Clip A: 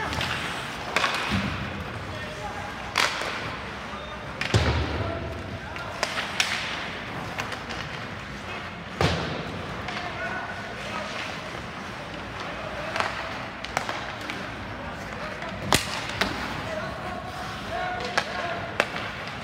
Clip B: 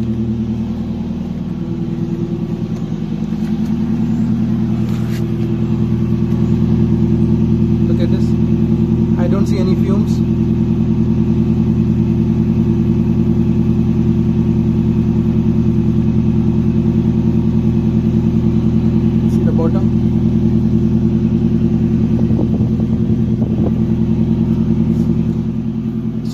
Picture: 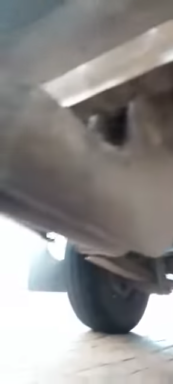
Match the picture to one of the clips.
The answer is B